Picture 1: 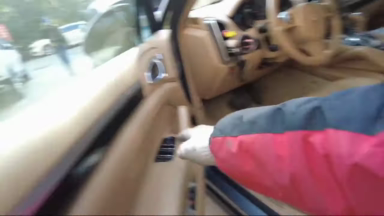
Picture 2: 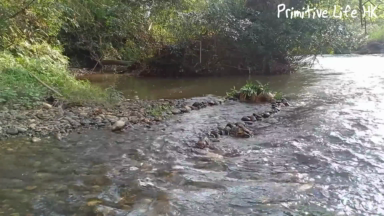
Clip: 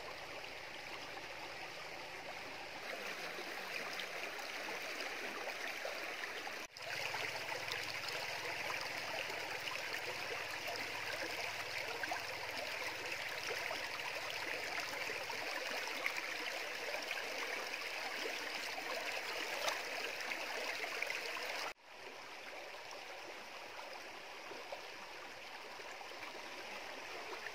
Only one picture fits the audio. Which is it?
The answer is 2